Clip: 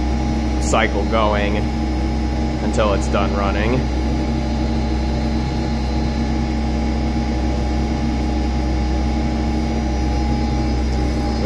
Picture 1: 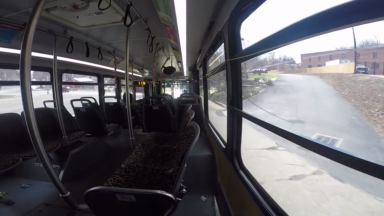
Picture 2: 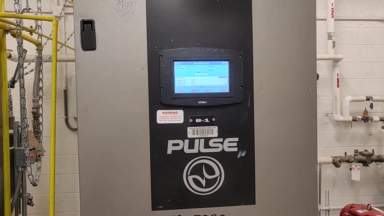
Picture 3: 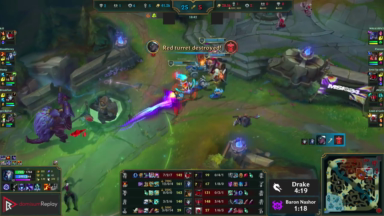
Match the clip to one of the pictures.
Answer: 2